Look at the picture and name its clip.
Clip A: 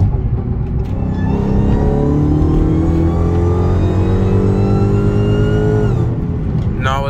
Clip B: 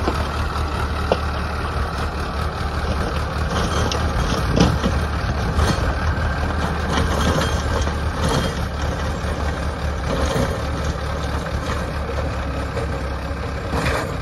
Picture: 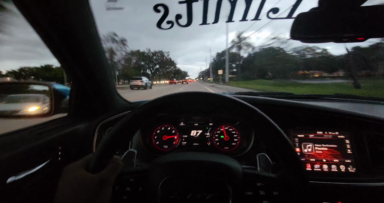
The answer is A